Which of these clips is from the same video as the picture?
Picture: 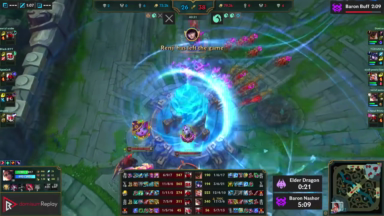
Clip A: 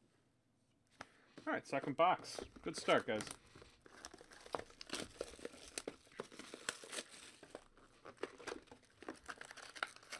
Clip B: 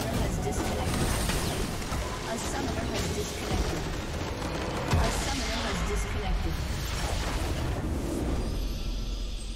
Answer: B